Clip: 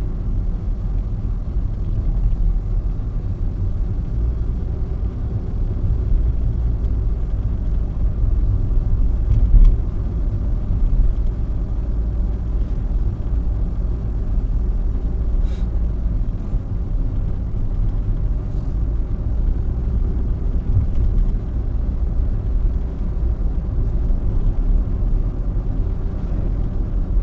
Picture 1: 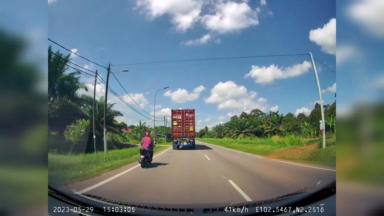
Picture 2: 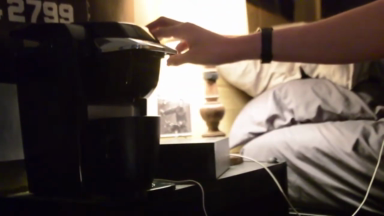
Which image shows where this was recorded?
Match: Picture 1